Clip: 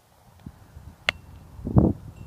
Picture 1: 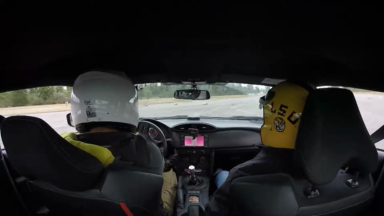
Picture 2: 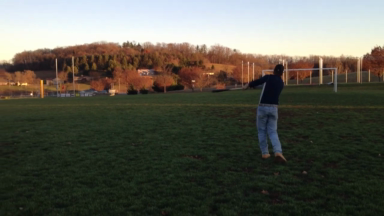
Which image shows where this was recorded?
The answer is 2